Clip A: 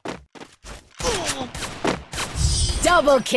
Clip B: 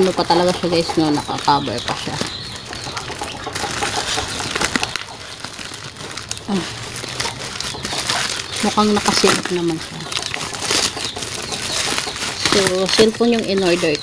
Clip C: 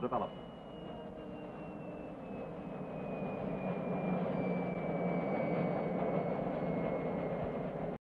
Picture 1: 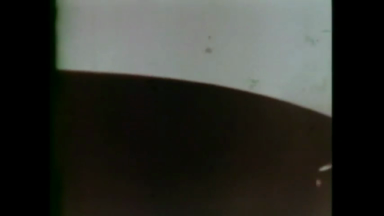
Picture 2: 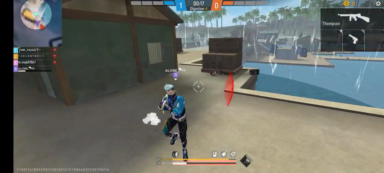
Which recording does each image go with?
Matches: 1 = C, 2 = A